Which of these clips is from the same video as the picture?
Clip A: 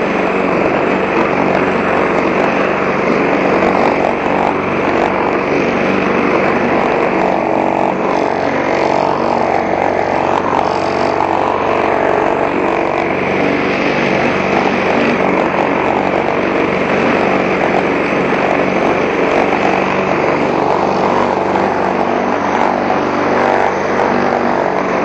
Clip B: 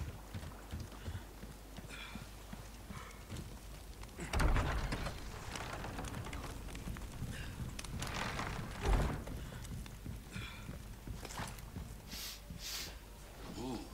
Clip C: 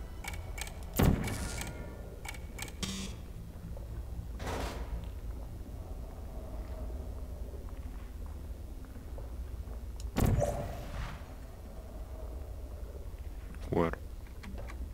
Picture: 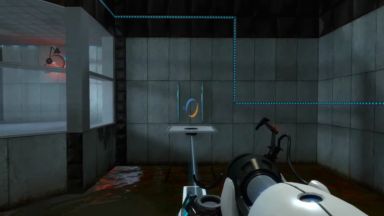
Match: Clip C